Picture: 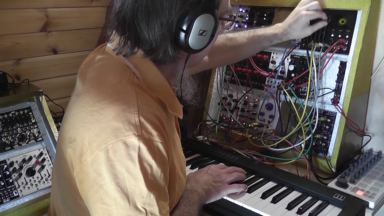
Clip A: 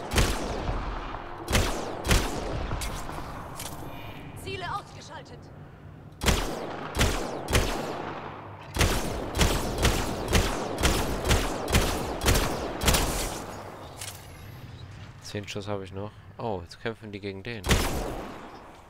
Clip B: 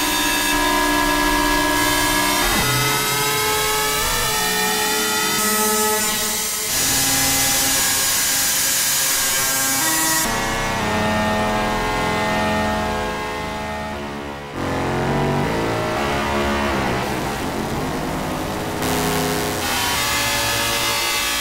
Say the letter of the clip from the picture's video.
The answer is B